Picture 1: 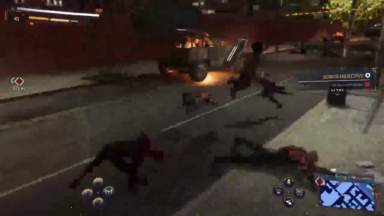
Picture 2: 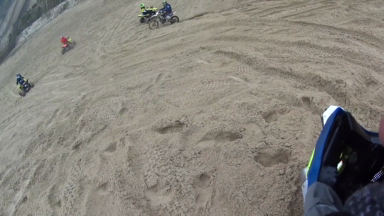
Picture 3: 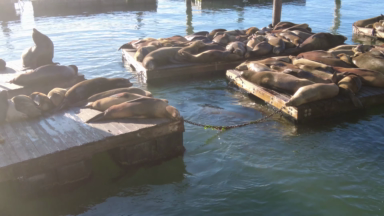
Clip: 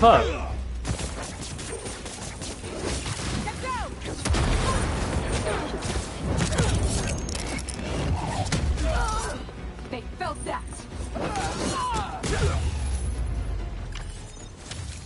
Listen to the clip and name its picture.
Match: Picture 1